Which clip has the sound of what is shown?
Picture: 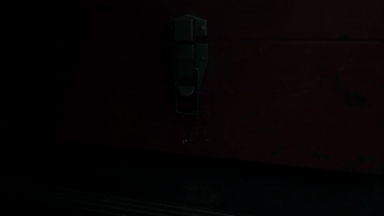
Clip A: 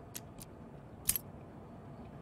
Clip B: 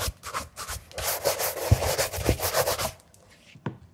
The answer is A